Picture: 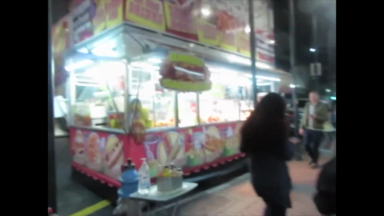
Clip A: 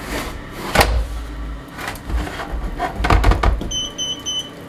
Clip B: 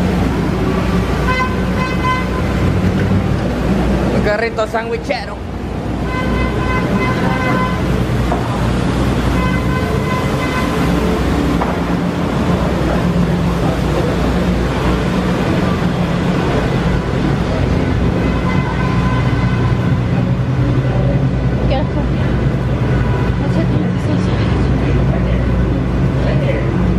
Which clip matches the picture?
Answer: B